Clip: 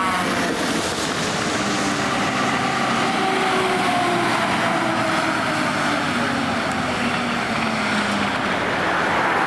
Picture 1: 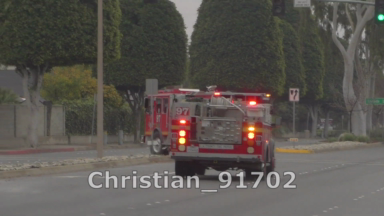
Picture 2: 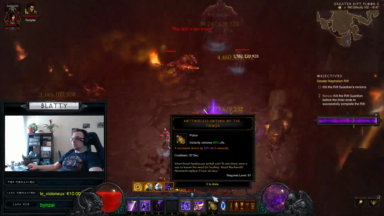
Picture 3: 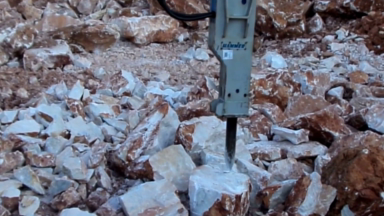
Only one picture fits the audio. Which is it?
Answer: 1